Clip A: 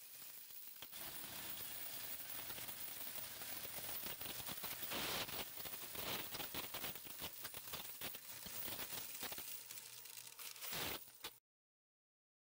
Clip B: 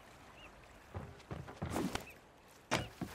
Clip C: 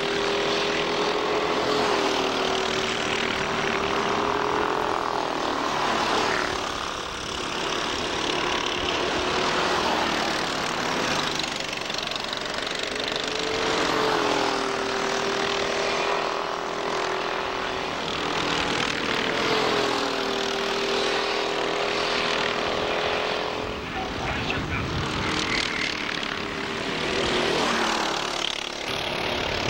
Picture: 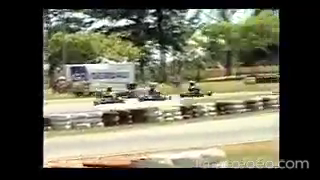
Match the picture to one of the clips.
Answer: C